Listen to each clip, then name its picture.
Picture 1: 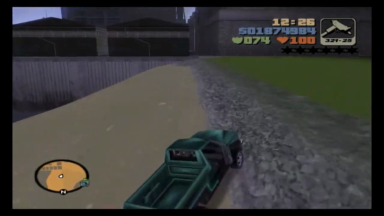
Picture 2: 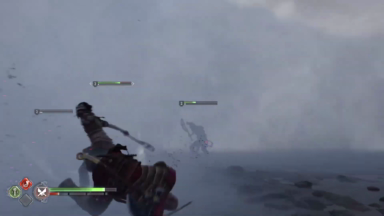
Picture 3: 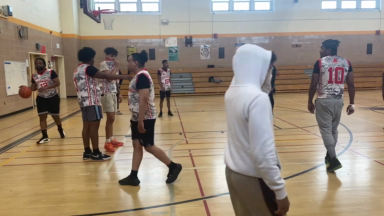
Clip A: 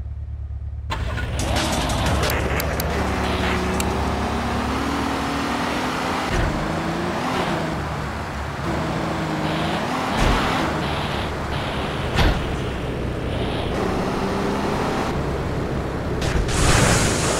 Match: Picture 1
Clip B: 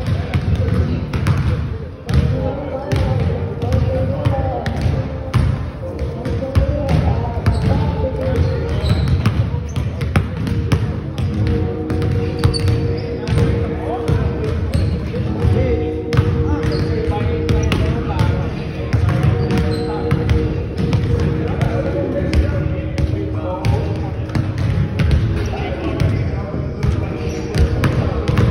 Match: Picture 3